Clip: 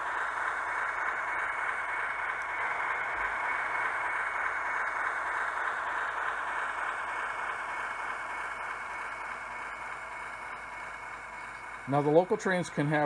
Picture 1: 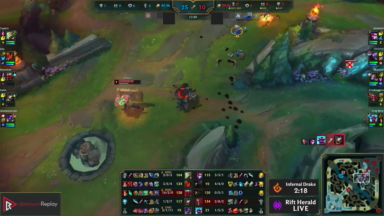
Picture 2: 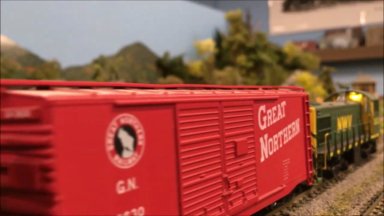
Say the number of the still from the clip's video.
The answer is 2